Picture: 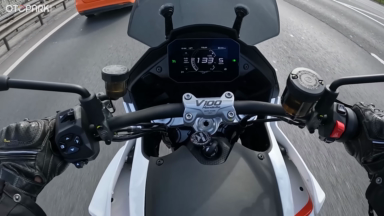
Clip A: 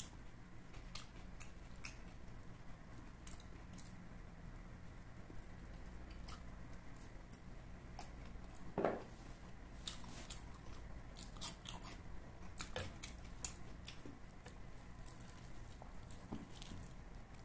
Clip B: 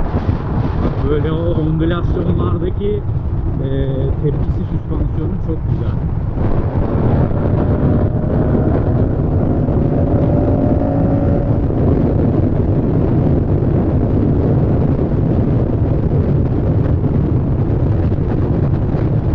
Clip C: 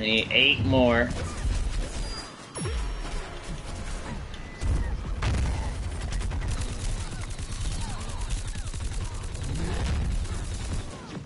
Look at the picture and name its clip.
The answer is B